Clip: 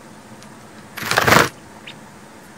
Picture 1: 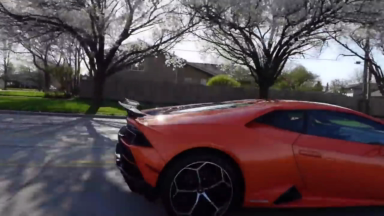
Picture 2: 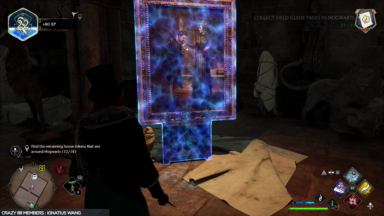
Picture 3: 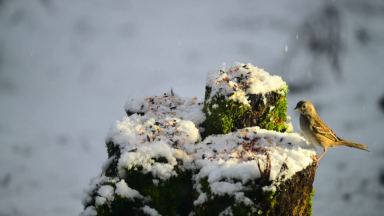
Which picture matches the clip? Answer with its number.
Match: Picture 3